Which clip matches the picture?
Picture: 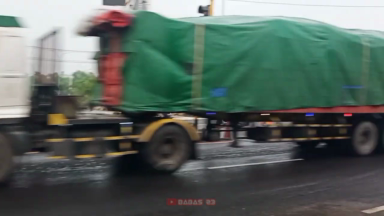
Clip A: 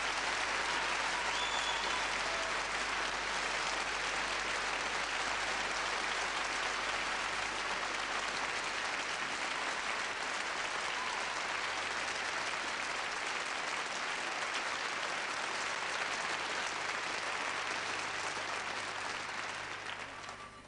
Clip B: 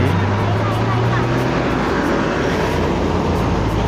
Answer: B